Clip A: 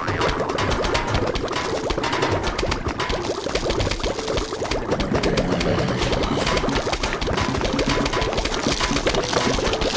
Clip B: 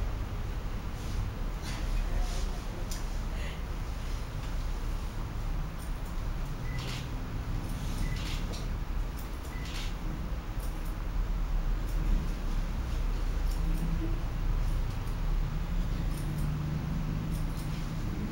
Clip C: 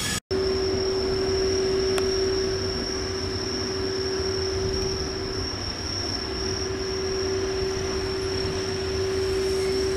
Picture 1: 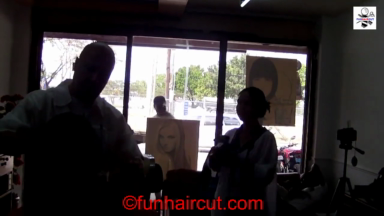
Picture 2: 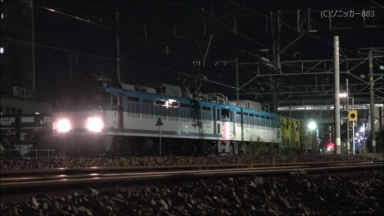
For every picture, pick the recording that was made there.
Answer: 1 B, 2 C